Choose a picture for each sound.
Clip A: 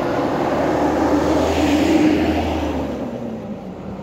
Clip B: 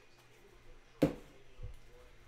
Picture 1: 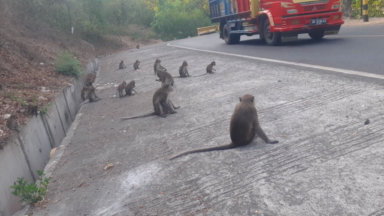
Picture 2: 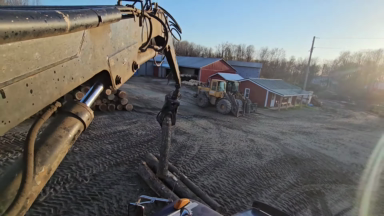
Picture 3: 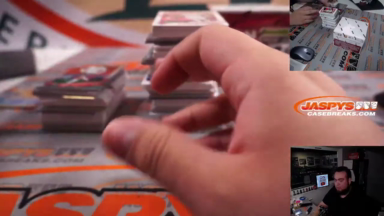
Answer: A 1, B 3